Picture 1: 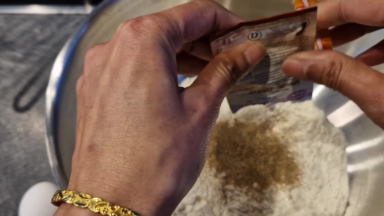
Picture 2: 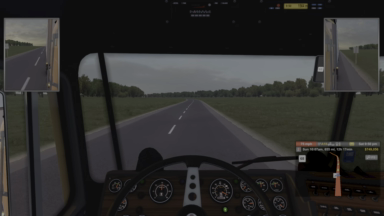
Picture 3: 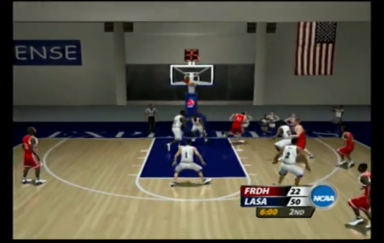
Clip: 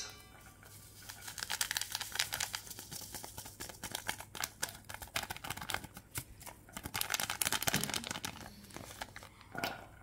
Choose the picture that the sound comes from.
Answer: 1